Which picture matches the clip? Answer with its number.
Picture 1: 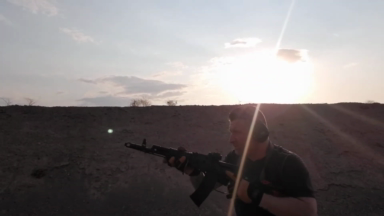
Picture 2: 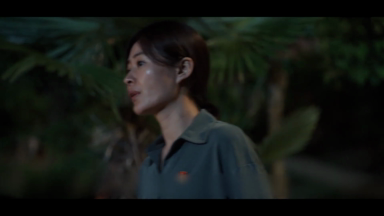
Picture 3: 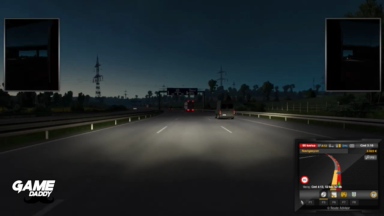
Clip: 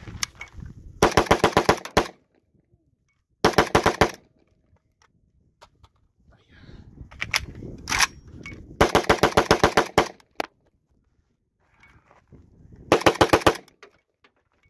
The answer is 1